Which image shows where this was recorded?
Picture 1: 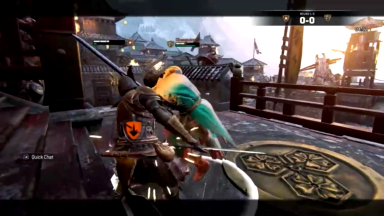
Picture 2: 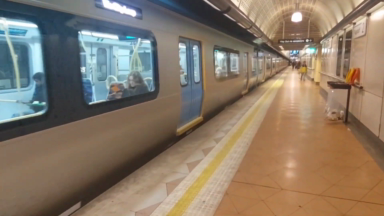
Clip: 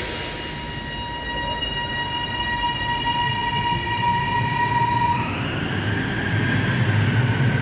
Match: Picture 2